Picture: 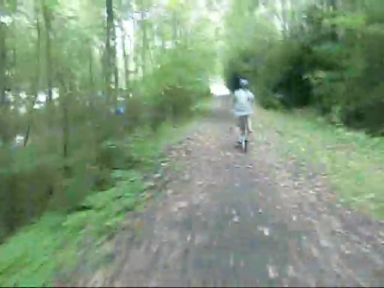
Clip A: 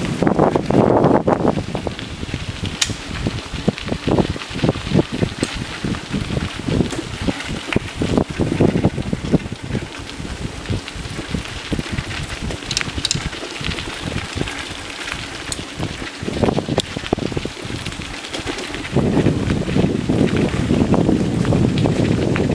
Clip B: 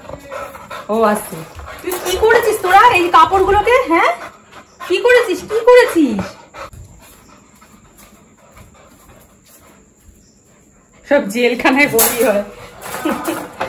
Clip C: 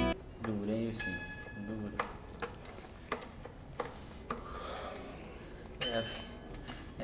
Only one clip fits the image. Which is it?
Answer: A